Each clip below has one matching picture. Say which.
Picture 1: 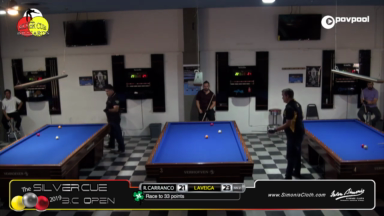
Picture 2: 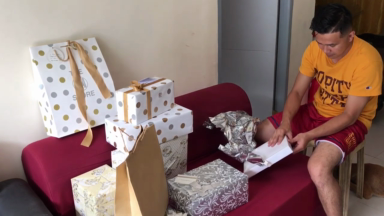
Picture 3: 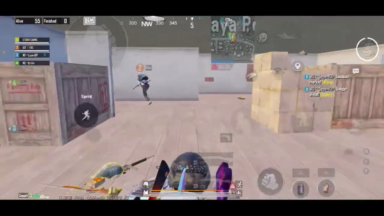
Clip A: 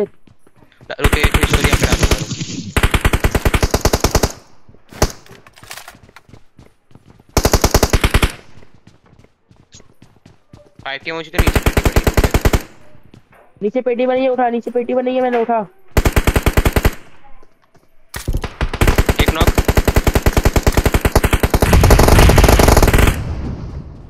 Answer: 3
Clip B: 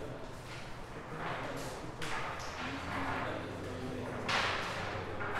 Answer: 1